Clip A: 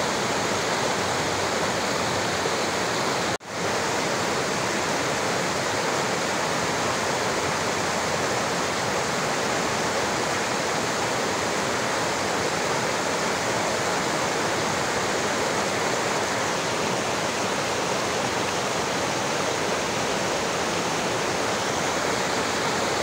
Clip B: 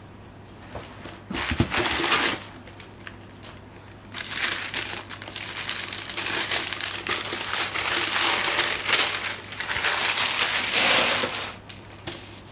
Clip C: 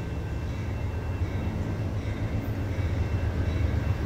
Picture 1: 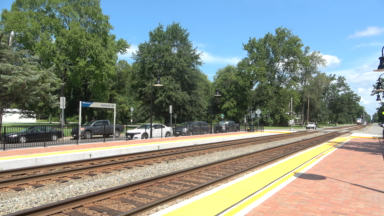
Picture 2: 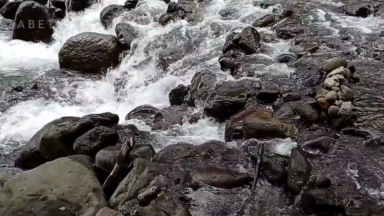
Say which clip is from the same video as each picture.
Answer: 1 C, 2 A